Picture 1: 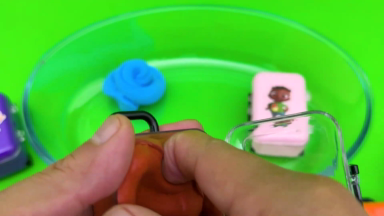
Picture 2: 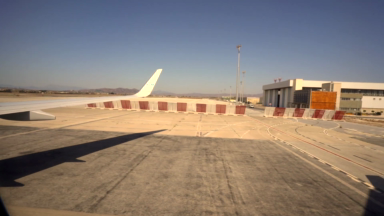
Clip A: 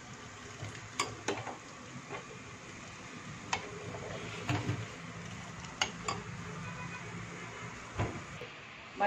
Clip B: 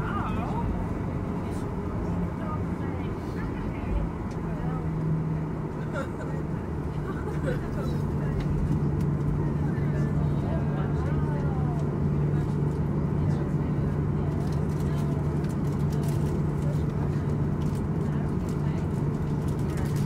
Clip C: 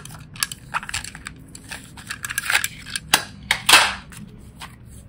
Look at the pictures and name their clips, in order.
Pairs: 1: C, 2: B